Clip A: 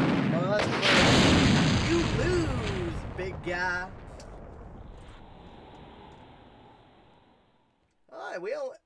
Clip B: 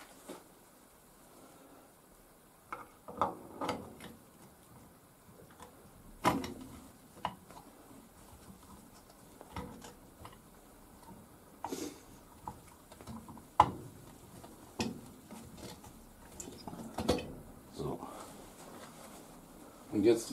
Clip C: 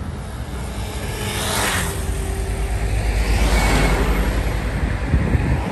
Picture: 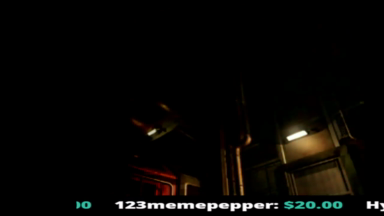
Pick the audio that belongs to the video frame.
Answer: A